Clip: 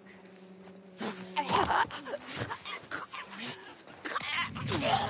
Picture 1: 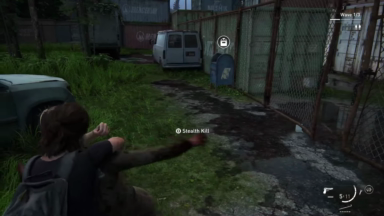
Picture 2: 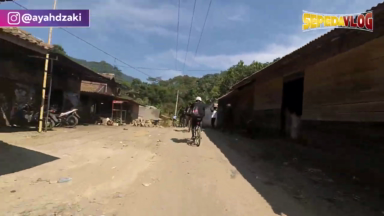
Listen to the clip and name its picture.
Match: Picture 1